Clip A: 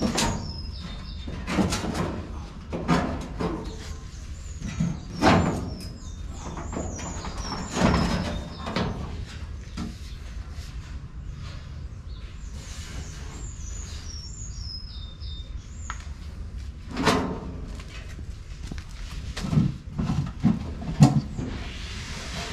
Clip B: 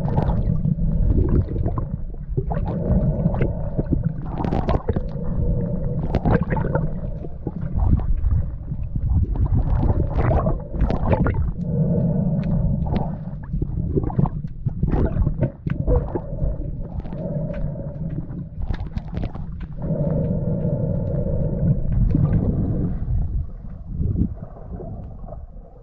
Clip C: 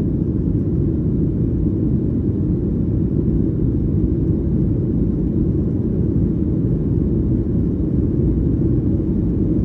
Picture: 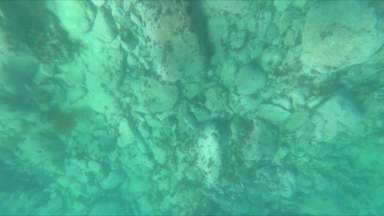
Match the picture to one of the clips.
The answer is B